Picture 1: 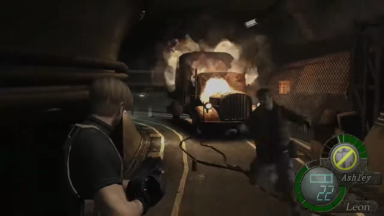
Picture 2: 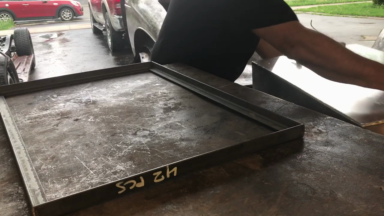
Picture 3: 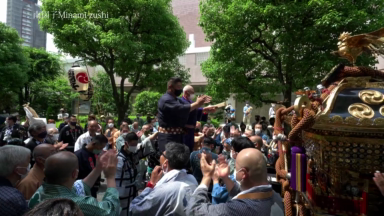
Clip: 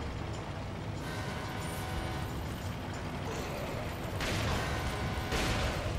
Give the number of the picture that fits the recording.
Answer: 1